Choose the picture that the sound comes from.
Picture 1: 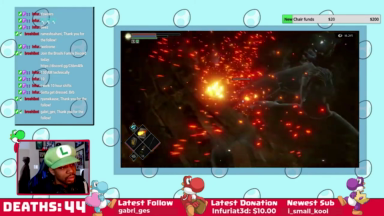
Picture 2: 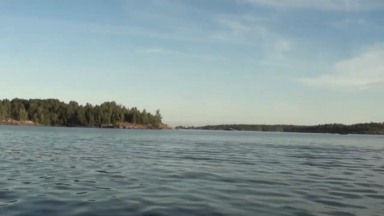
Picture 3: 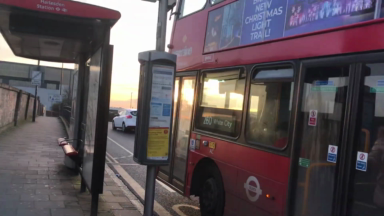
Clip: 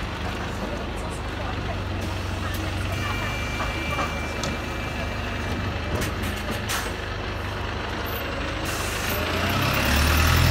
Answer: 3